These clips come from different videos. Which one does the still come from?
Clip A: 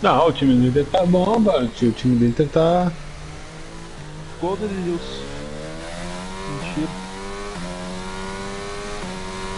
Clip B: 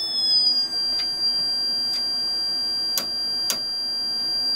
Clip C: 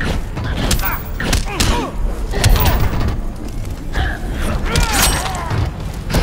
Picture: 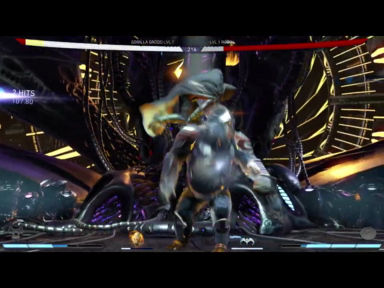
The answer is C